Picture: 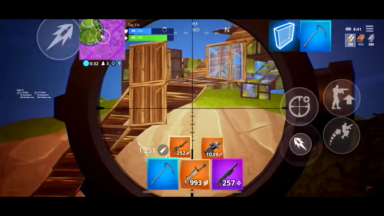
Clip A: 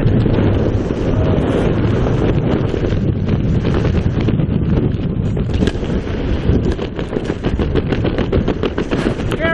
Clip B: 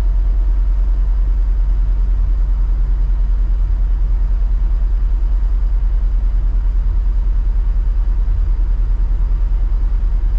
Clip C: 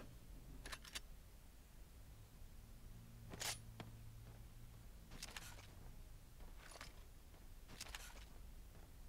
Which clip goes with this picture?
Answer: C